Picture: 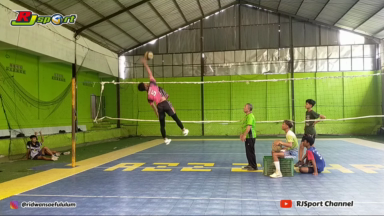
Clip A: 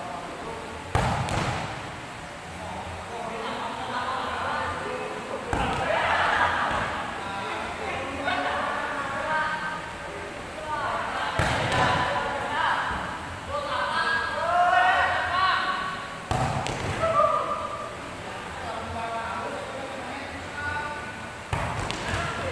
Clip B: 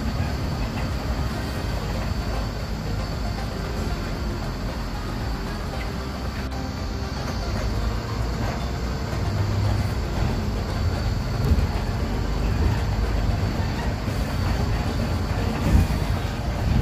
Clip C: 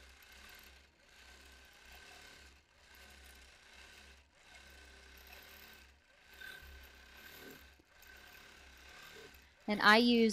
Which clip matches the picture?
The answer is A